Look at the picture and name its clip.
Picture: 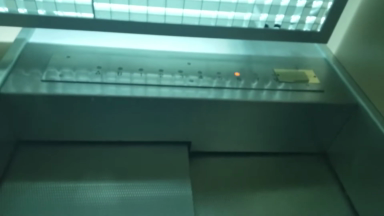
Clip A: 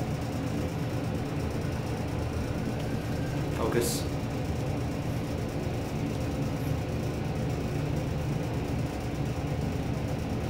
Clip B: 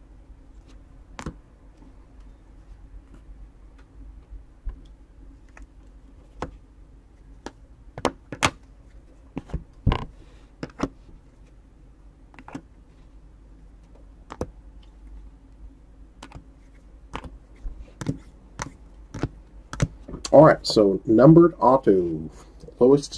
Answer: A